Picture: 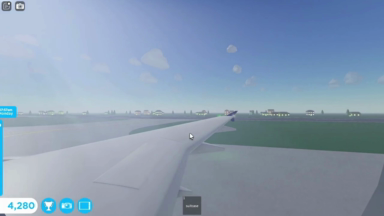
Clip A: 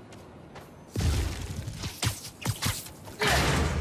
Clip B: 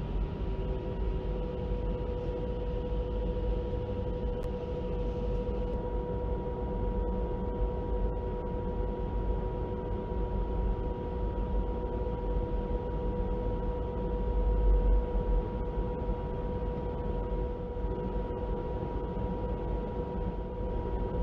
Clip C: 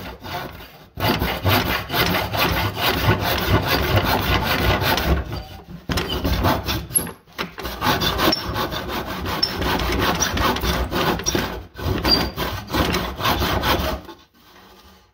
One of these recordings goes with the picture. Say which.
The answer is B